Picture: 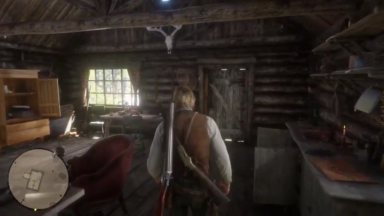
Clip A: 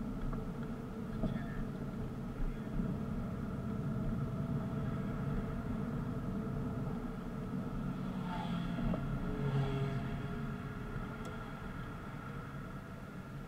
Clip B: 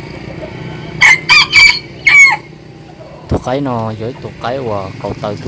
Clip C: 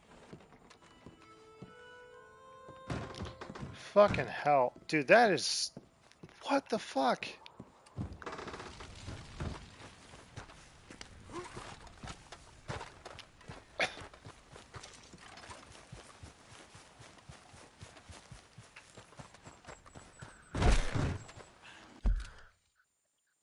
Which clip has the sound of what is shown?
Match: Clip C